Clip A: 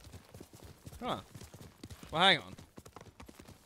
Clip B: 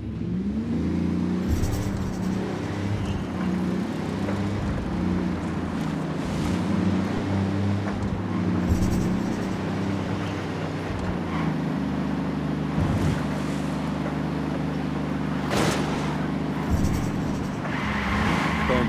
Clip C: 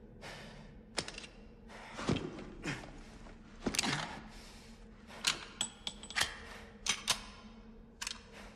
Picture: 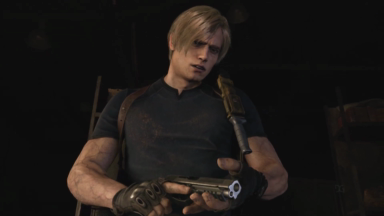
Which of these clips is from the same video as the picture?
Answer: C